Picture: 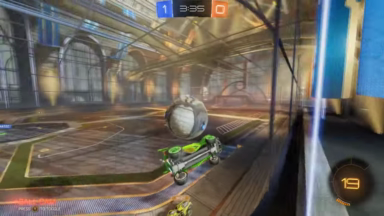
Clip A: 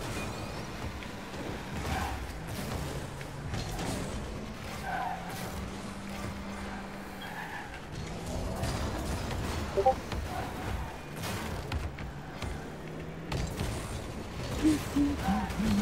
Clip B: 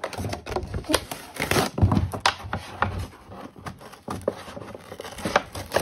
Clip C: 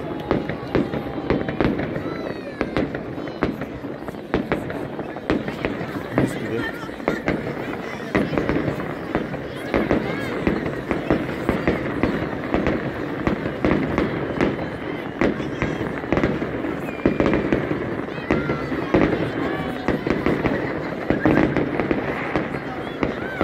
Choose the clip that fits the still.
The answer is A